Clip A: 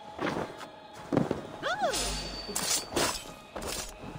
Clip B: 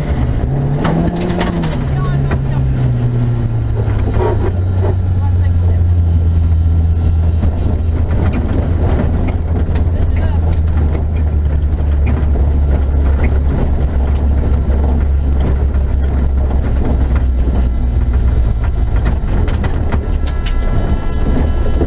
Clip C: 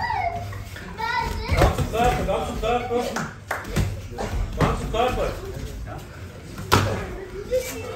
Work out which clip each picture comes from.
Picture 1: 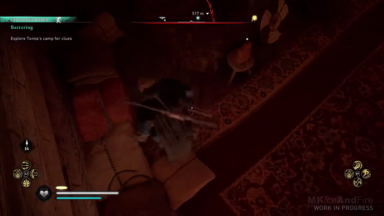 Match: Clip A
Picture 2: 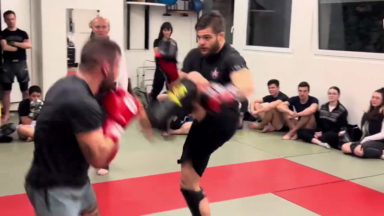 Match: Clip C